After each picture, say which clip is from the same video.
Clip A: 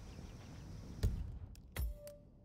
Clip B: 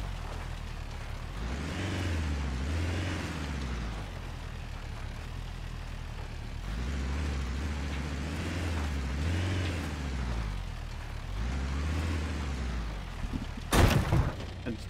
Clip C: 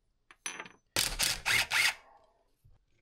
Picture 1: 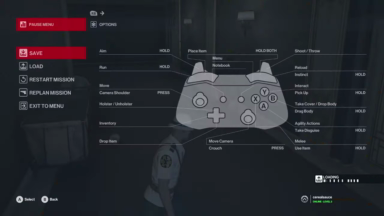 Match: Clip A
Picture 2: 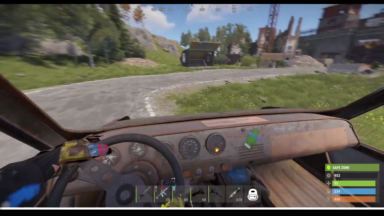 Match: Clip B